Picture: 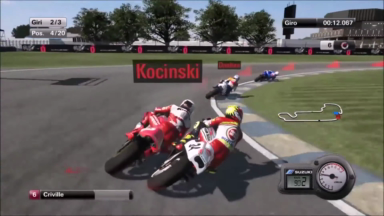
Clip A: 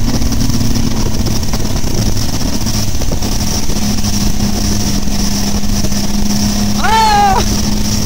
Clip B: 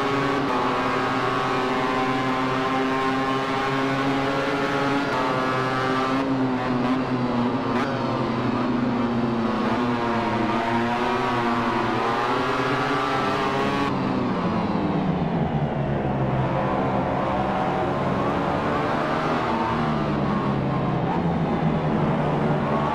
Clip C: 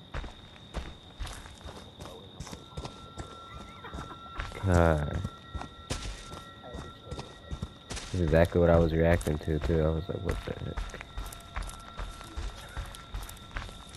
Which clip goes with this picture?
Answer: B